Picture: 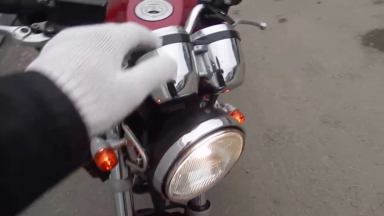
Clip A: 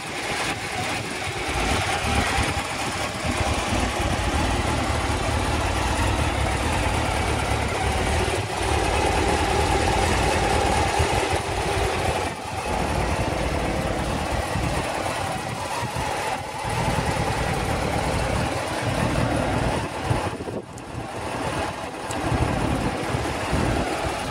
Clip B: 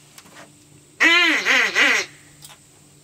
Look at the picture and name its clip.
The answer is A